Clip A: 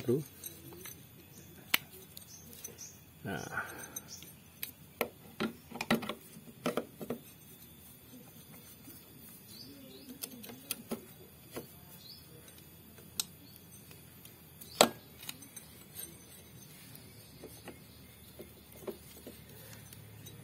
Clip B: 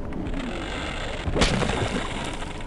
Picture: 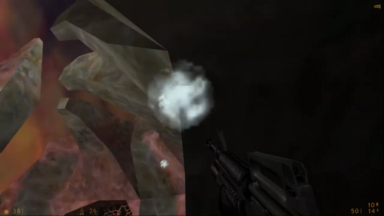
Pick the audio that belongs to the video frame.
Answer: B